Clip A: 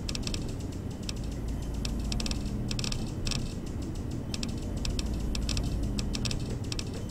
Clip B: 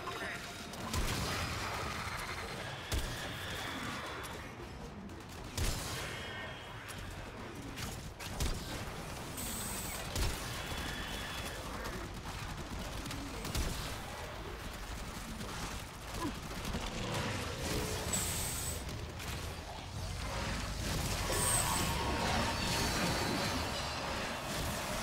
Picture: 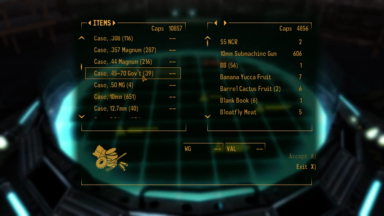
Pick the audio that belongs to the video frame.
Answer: A